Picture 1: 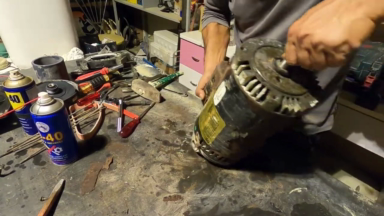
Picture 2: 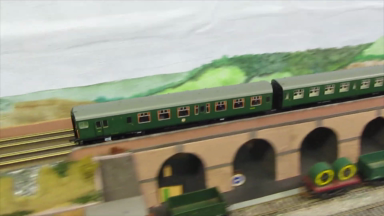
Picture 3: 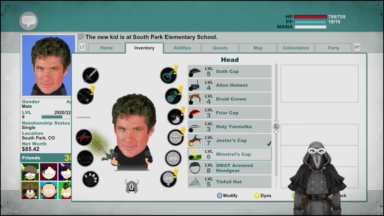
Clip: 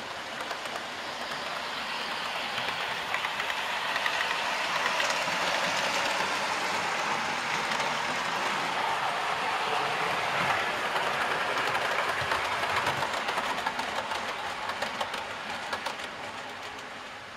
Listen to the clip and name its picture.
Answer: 2